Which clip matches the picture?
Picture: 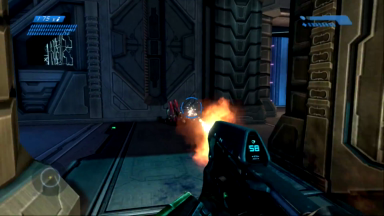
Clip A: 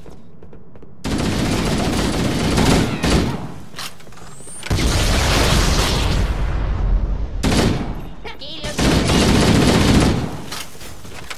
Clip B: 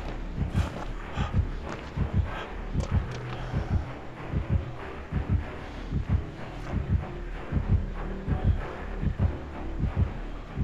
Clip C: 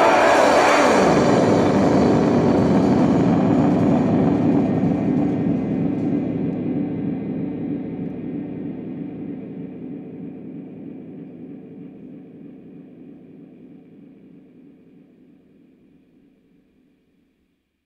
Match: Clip A